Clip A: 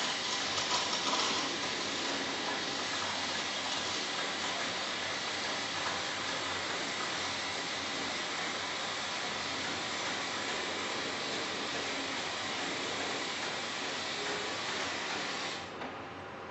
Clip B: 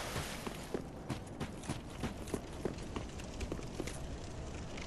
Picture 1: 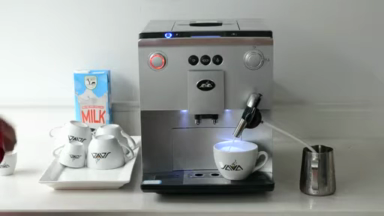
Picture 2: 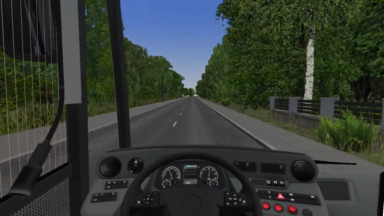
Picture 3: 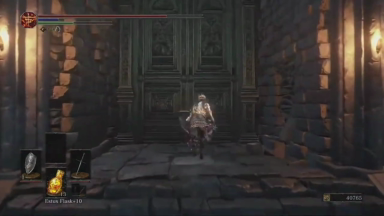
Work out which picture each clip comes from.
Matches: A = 1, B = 3